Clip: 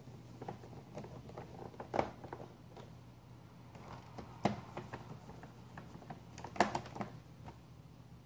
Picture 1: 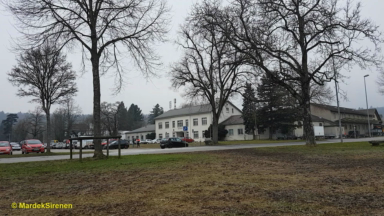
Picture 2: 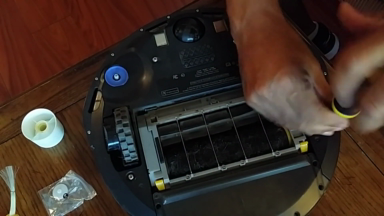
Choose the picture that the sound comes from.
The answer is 2